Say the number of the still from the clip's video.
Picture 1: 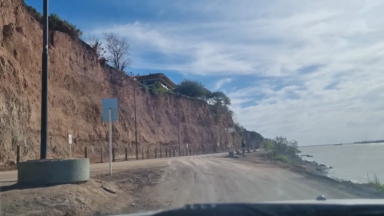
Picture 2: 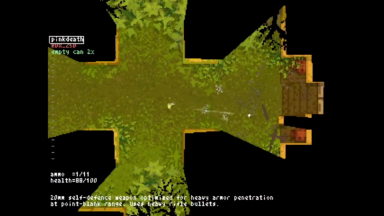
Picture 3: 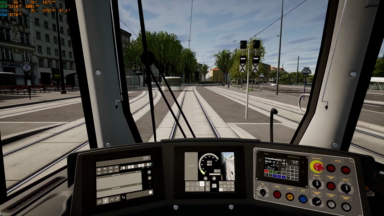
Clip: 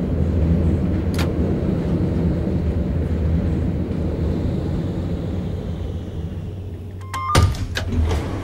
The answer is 3